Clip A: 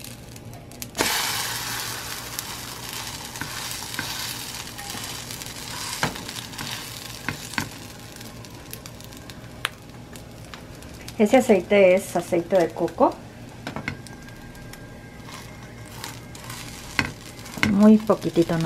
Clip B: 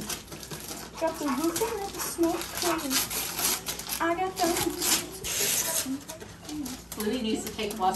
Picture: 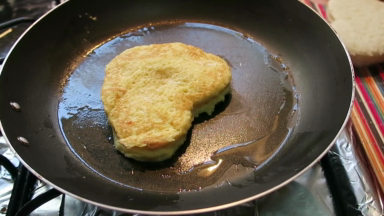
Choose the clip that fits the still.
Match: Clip A